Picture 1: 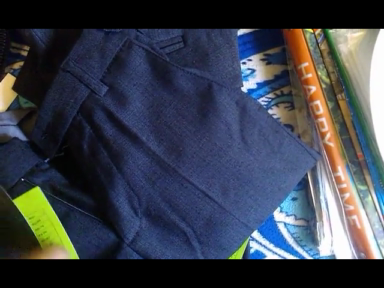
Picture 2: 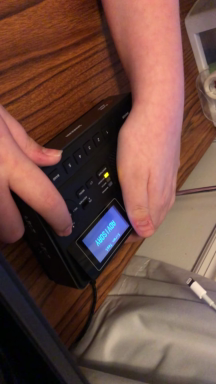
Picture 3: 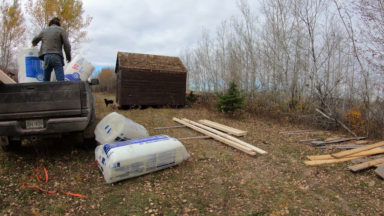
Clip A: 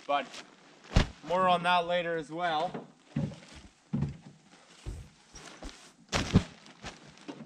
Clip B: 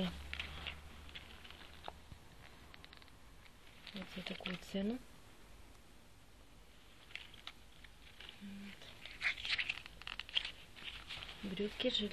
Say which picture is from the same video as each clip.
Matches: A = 3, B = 1